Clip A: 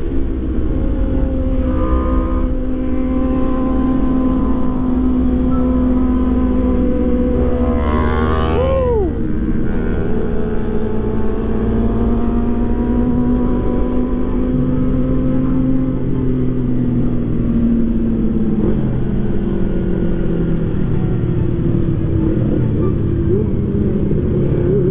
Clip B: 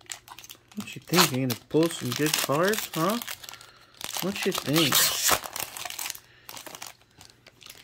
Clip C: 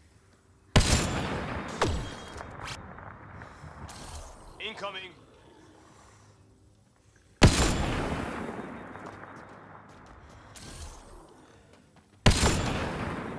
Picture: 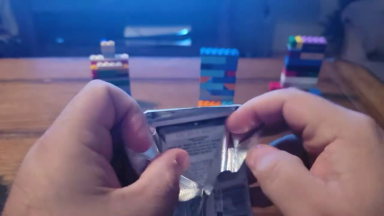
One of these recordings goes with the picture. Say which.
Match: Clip B